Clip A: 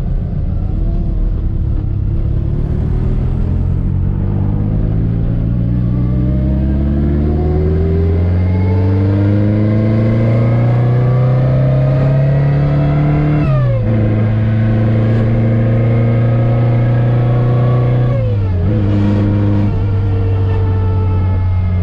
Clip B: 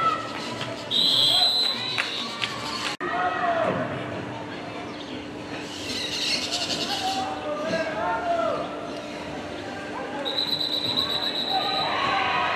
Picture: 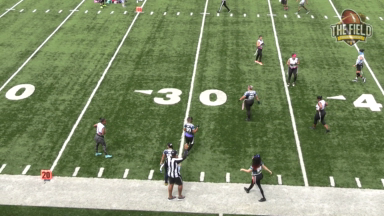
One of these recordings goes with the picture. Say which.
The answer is B